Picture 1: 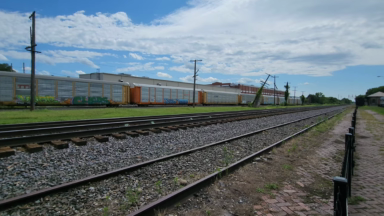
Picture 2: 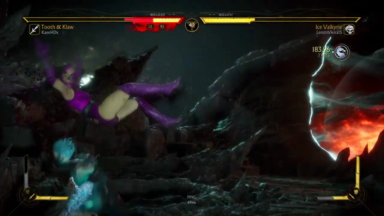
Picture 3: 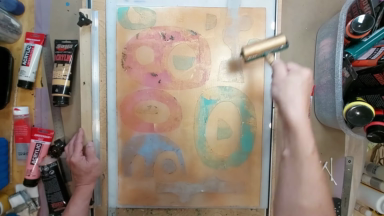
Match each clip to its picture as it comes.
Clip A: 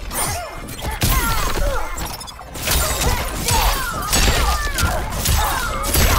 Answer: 2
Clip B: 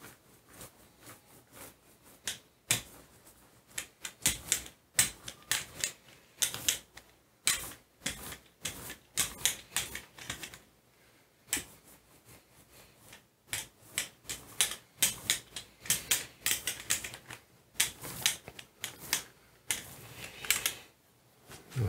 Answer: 3